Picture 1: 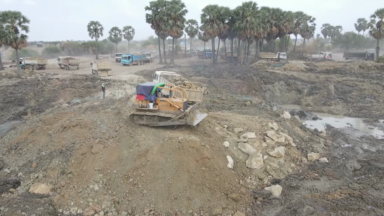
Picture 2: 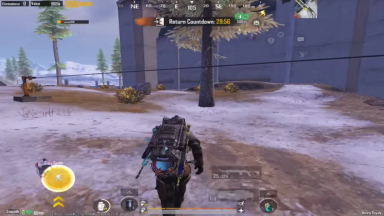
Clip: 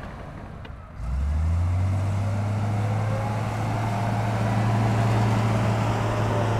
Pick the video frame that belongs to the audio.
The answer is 1